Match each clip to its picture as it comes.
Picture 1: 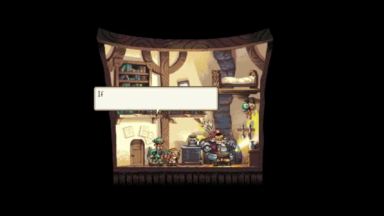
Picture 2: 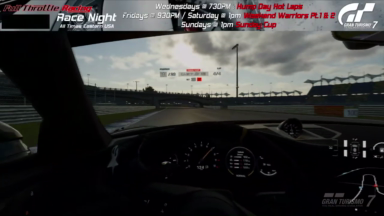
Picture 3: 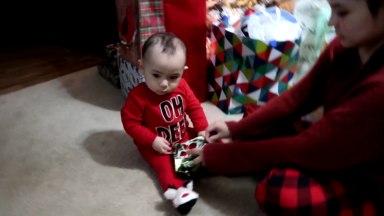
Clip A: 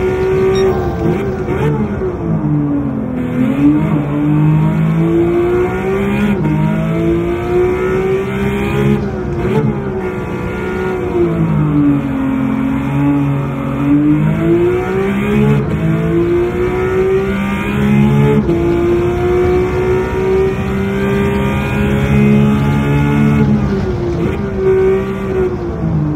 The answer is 2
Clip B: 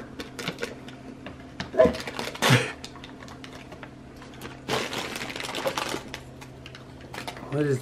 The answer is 3